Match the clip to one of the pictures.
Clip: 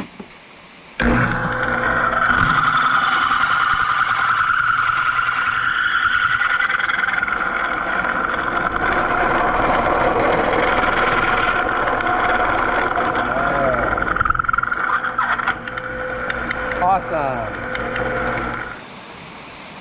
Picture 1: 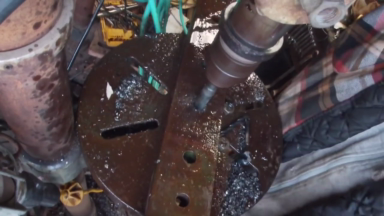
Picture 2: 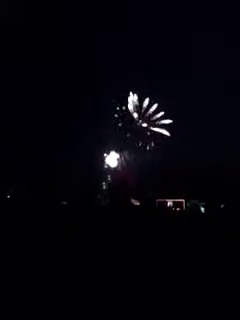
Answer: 1